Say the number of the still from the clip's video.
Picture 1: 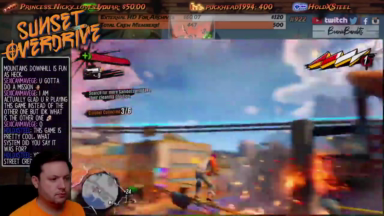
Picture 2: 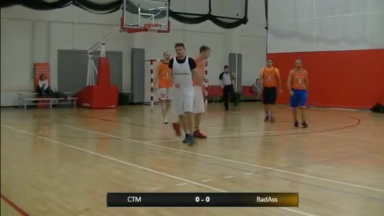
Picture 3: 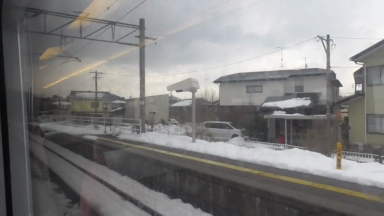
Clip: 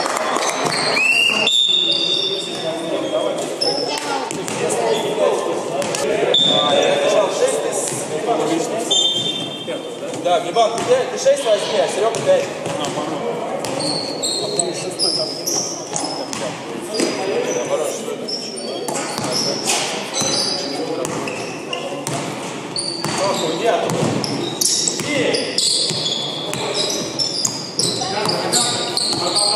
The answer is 2